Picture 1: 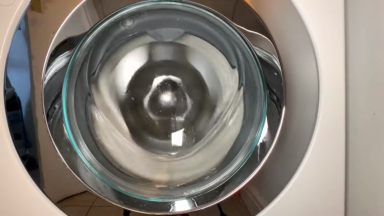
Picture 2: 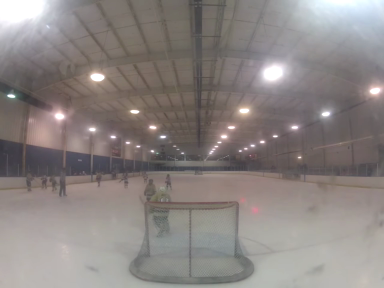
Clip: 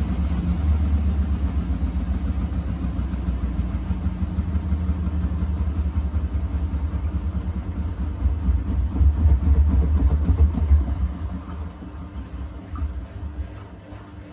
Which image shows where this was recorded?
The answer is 1